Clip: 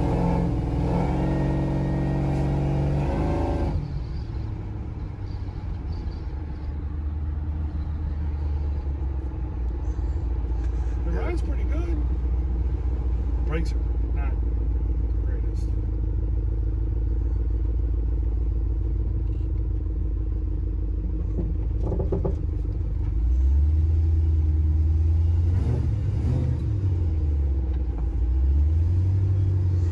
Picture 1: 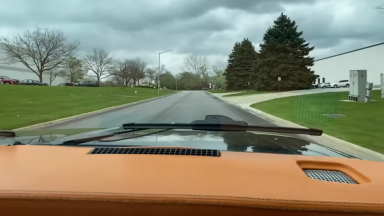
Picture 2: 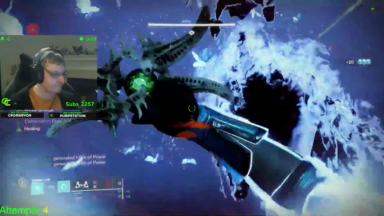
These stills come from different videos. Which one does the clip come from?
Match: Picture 1